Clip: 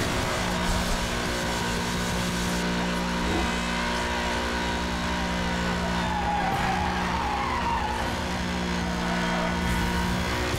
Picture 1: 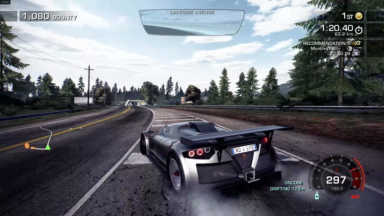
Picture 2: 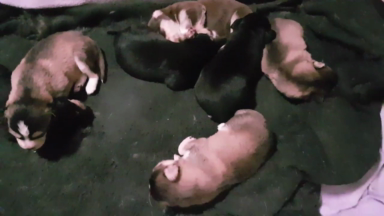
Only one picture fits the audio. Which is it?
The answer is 1